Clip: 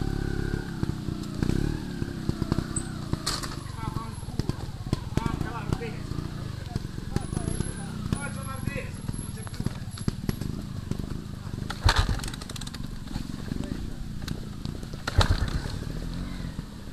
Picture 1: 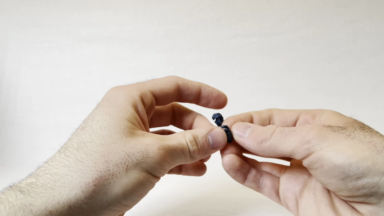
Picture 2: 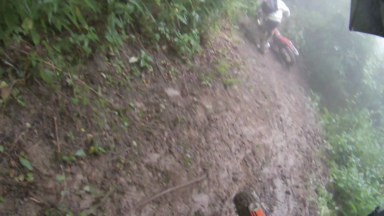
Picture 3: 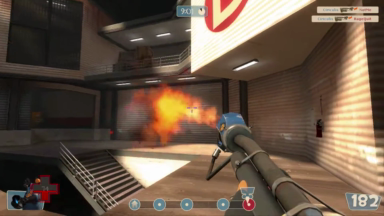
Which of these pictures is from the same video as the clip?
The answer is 2